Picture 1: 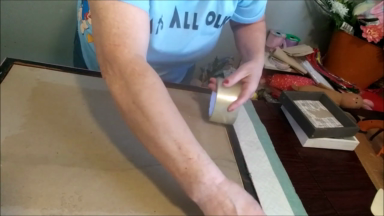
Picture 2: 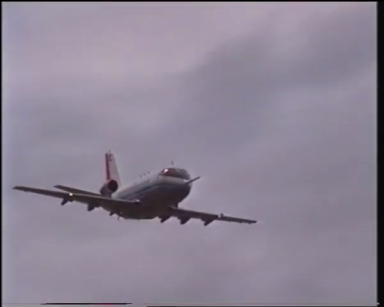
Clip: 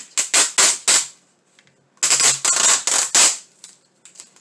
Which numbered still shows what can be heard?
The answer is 1